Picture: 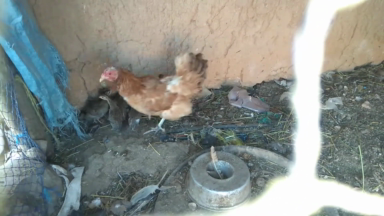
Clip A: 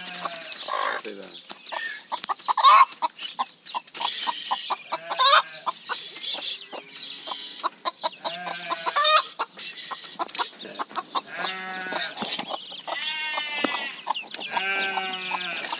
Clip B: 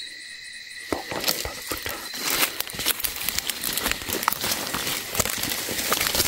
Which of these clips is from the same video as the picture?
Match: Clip A